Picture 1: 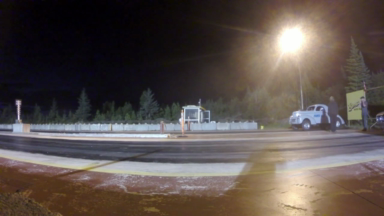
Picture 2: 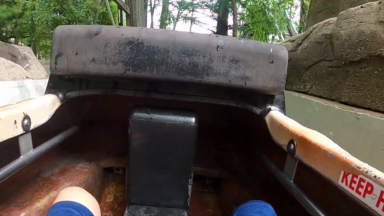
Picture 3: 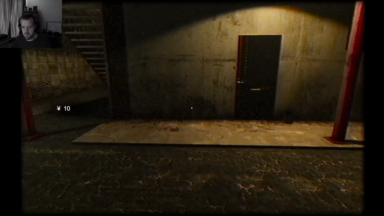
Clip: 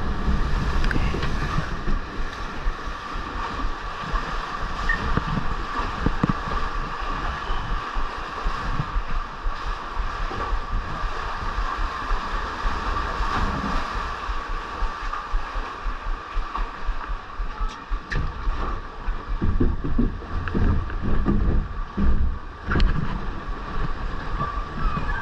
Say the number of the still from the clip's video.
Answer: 2